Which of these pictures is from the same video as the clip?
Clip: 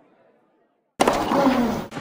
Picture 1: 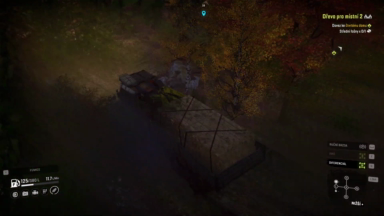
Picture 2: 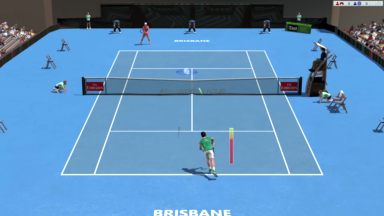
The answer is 2